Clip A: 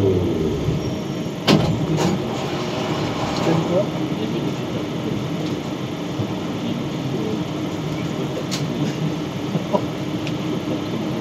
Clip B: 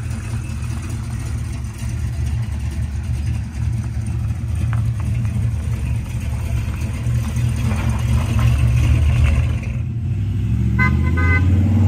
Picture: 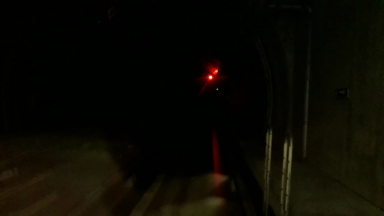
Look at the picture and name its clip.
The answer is A